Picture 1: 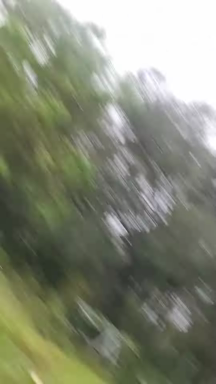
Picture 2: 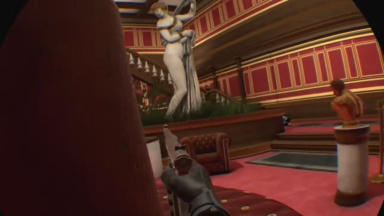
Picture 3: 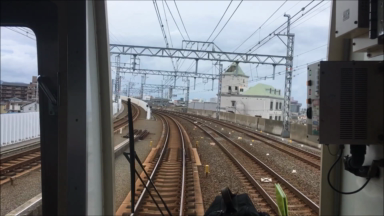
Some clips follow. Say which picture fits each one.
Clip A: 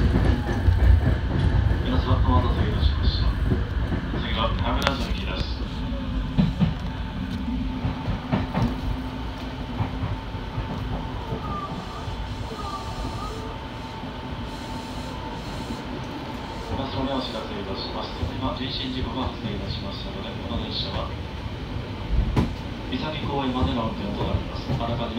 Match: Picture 3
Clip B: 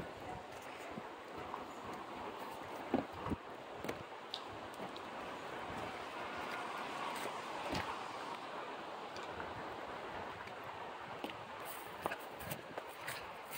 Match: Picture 1